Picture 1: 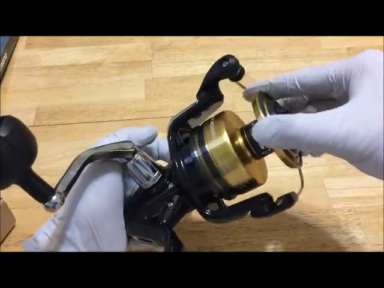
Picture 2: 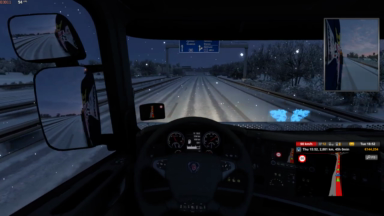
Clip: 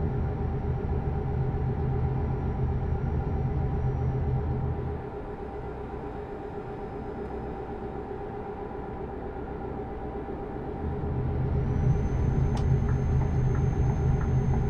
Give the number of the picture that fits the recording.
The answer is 2